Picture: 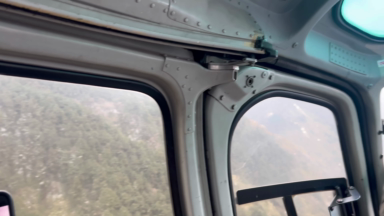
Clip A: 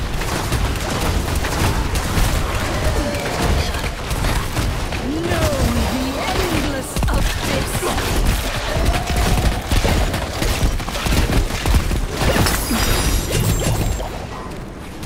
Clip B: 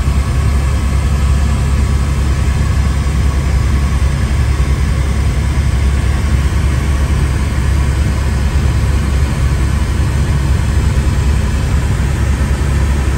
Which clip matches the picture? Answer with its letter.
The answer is B